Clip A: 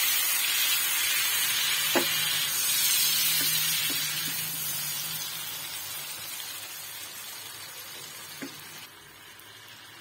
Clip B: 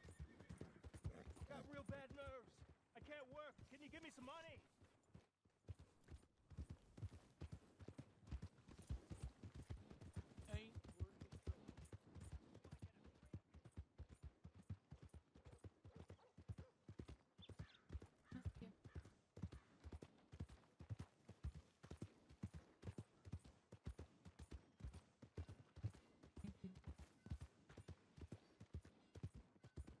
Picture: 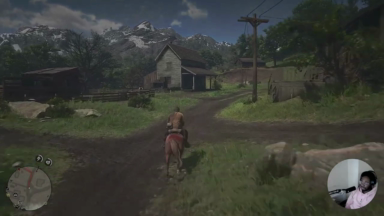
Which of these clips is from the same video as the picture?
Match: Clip B